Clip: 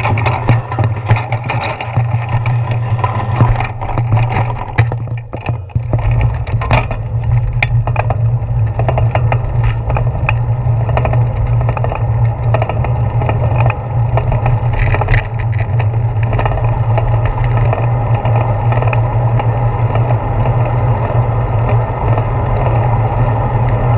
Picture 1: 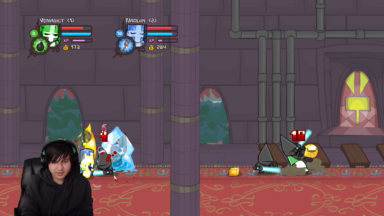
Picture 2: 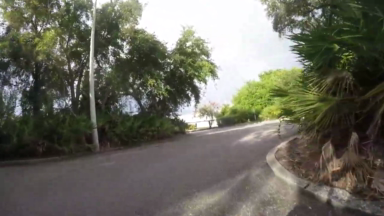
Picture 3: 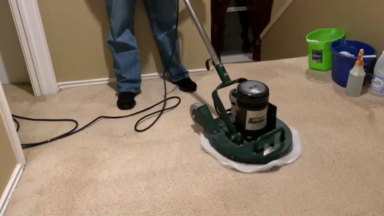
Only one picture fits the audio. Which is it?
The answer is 2